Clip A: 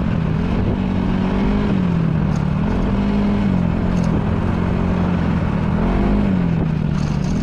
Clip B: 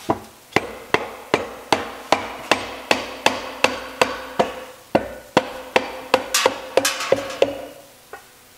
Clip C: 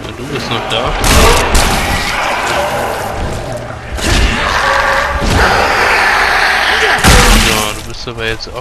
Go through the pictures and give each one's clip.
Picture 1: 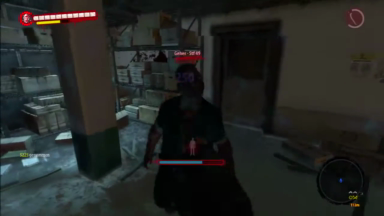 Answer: C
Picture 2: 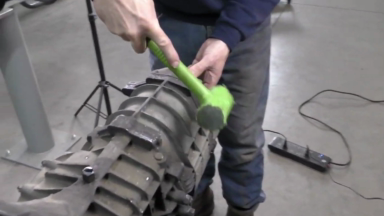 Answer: B